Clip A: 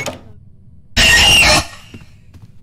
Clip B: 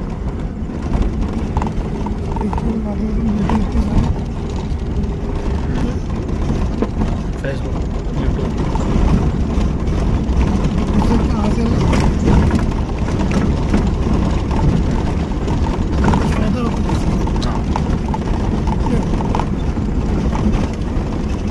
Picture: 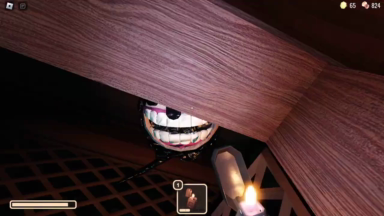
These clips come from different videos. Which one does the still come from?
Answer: A